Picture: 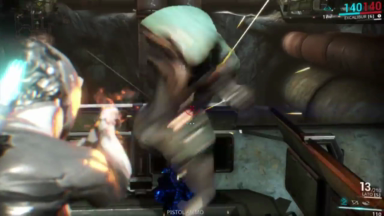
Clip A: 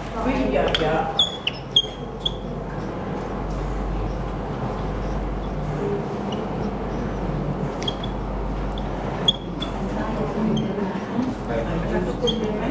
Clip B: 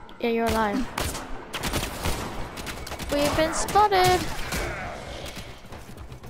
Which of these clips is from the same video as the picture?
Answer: B